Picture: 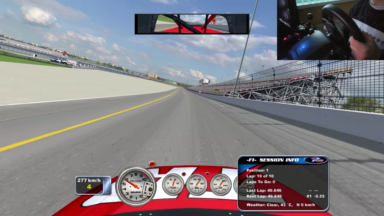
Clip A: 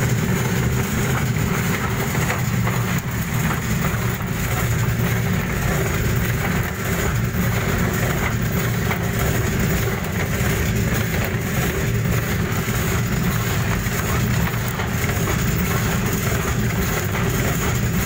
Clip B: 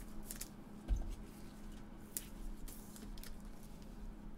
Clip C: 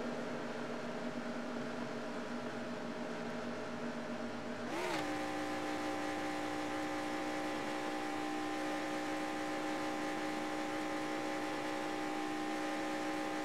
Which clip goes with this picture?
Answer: C